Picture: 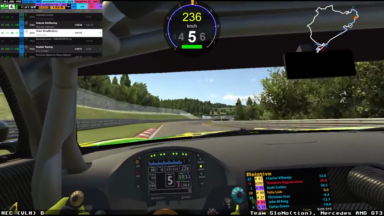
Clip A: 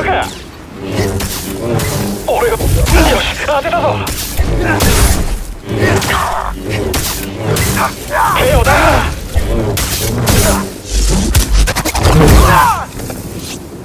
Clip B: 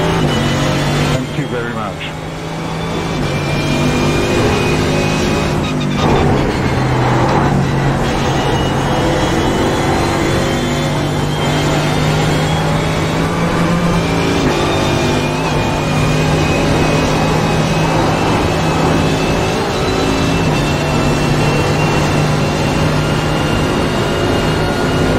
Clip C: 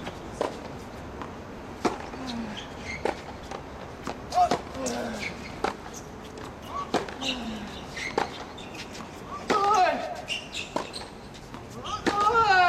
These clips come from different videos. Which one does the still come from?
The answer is B